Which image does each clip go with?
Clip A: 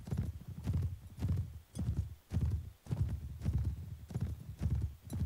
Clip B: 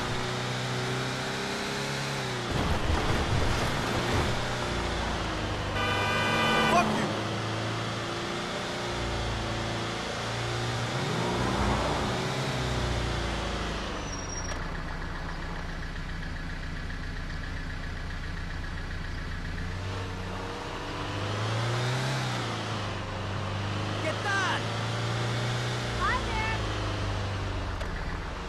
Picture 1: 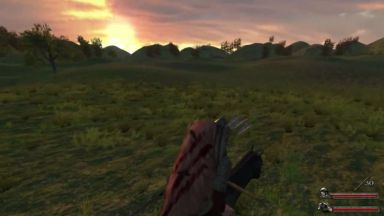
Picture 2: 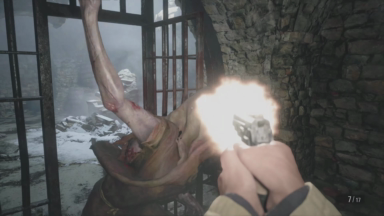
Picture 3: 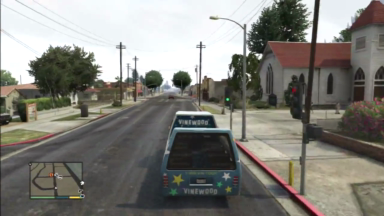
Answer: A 1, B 3